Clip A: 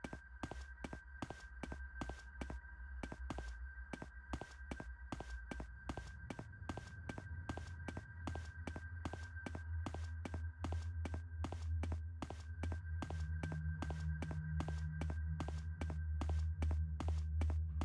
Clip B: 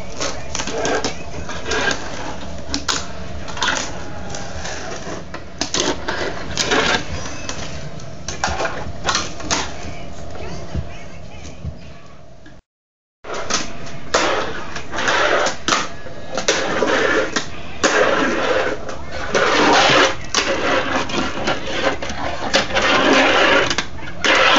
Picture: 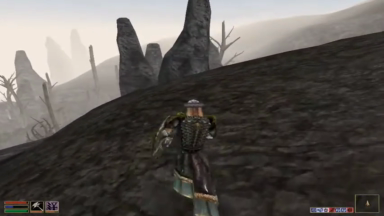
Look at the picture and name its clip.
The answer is A